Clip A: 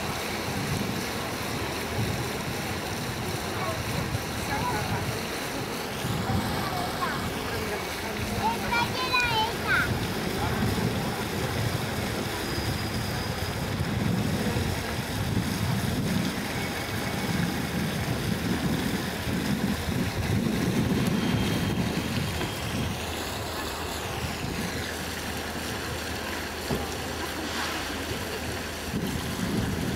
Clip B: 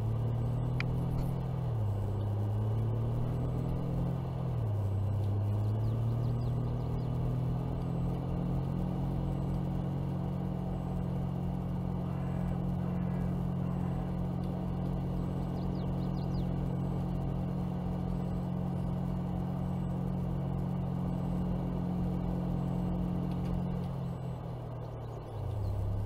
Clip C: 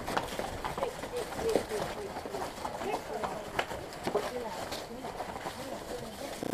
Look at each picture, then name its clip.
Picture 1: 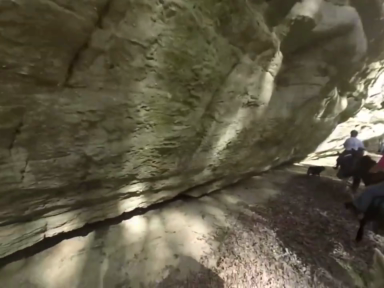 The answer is C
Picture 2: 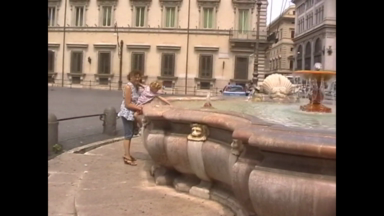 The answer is A